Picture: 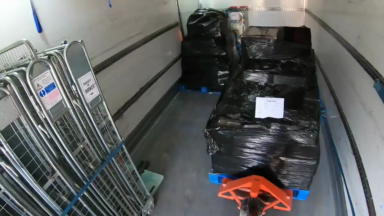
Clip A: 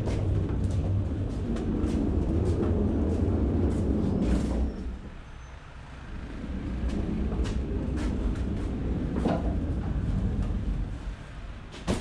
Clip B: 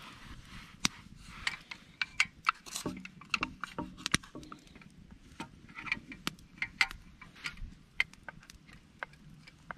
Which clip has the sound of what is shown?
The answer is A